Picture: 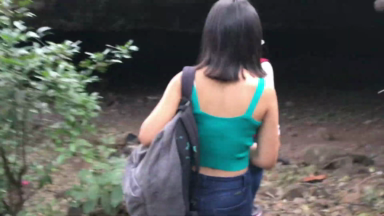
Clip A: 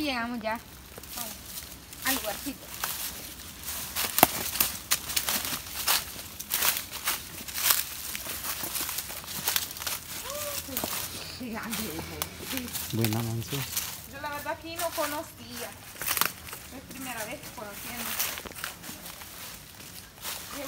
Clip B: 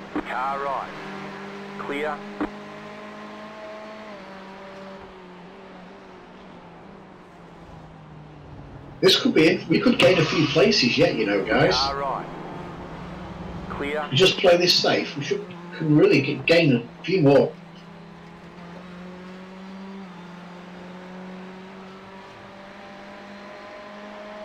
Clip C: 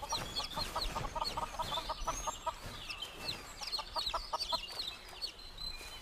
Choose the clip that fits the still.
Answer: A